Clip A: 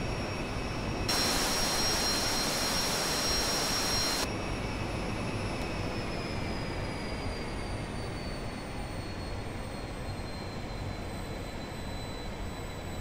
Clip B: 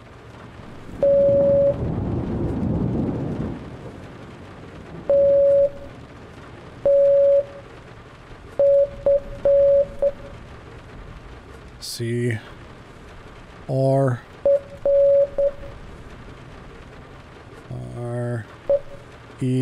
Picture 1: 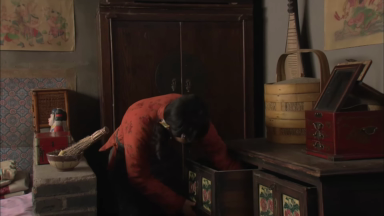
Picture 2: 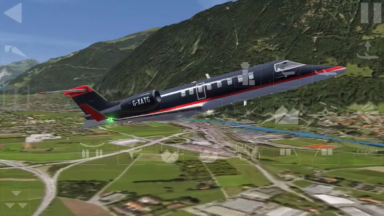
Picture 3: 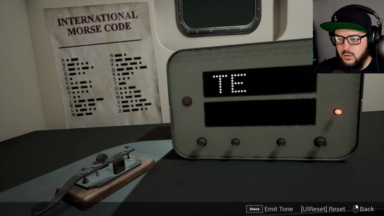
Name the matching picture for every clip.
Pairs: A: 2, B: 3